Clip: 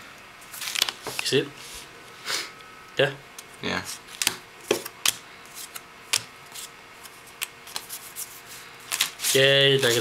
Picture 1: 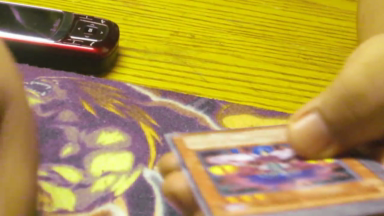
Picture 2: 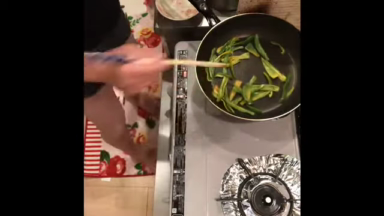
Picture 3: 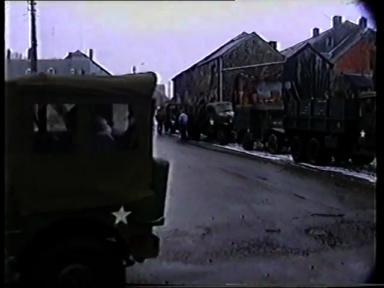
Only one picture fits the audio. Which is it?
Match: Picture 1